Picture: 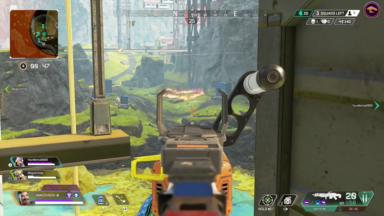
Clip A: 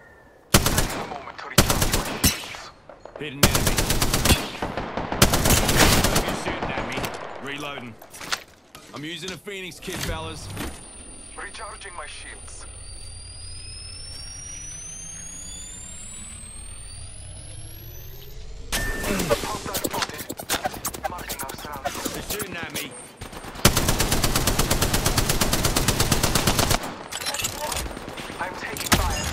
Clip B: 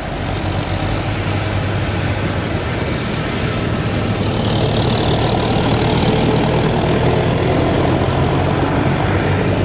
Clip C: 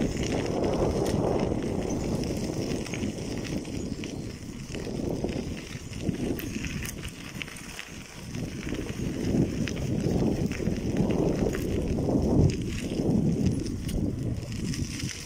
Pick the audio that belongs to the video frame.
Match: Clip A